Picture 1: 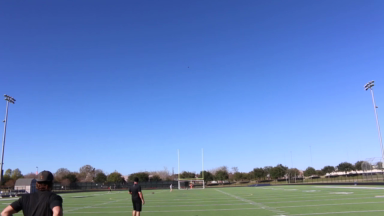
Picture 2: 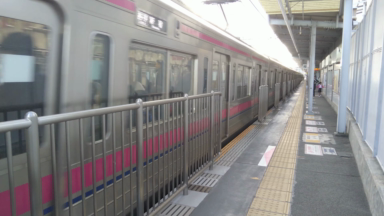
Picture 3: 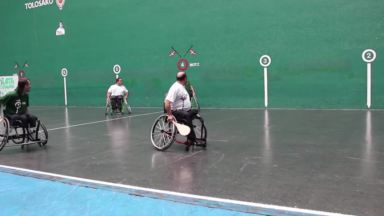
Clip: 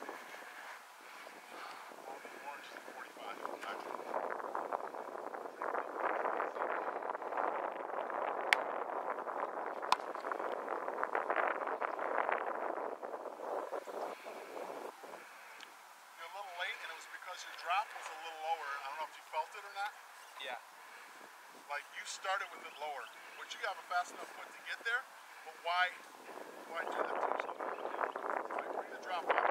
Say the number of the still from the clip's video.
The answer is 1